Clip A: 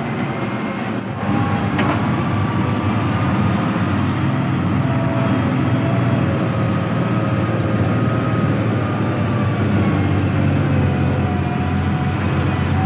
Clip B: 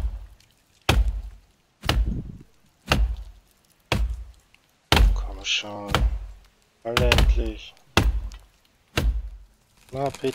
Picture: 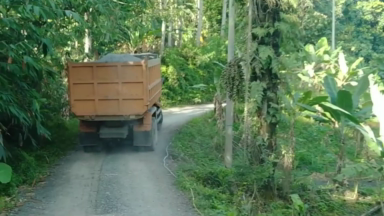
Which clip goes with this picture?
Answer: A